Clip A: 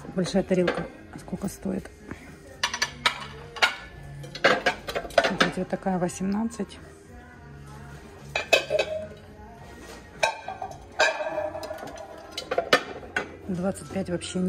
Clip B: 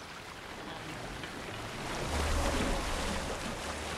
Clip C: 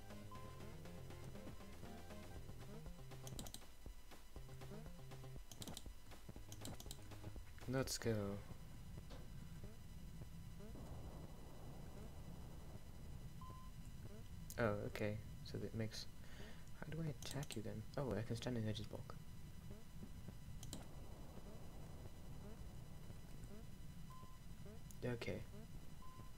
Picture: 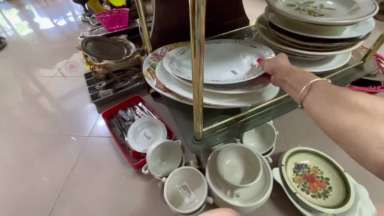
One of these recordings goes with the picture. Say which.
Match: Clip A